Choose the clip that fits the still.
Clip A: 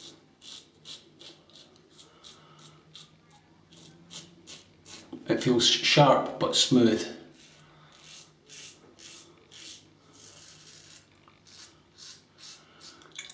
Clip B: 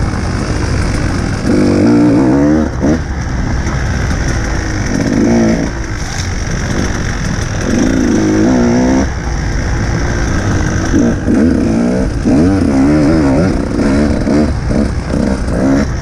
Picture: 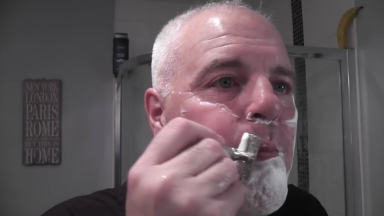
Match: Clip A